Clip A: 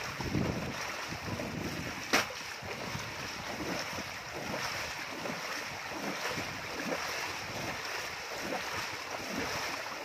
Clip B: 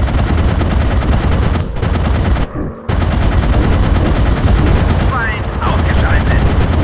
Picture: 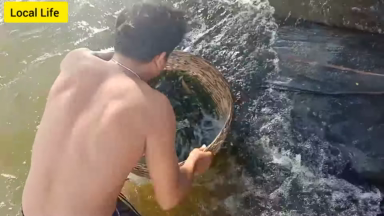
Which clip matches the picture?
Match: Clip A